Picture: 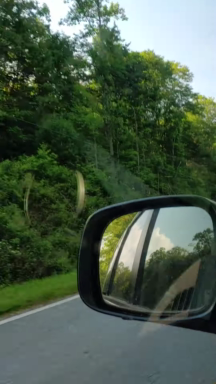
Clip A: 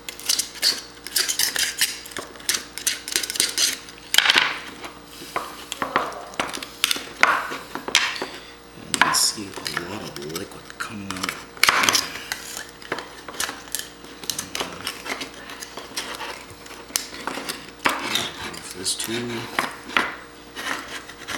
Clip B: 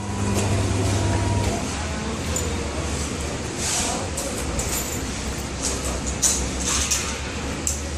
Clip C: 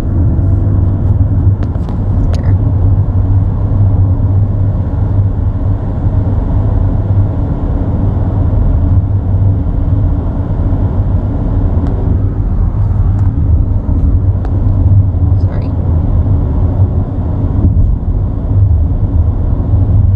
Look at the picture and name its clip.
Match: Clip C